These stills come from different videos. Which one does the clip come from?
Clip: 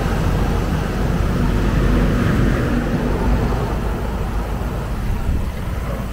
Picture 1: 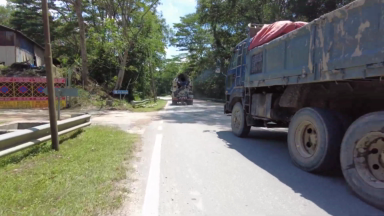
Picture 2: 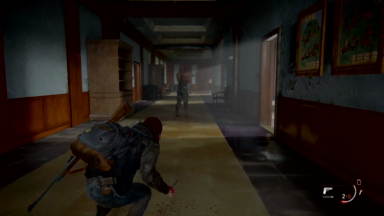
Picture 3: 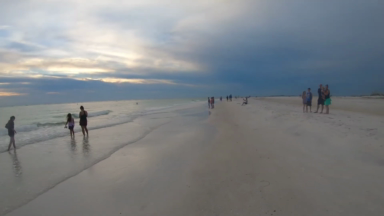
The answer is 1